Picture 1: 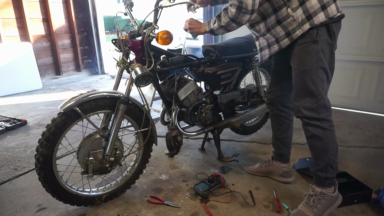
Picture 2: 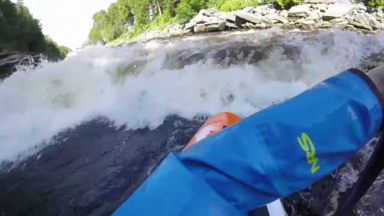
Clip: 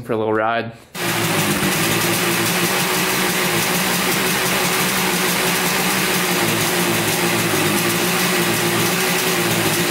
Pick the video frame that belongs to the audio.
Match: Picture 1